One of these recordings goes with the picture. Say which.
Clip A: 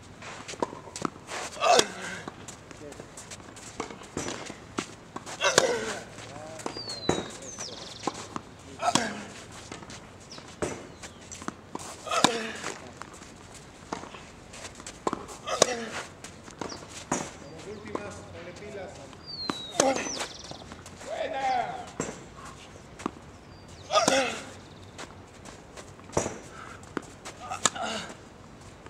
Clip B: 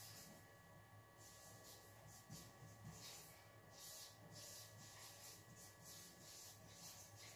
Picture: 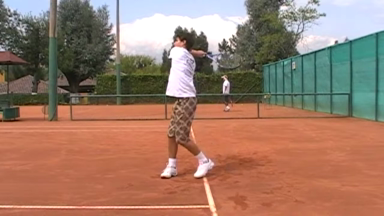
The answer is A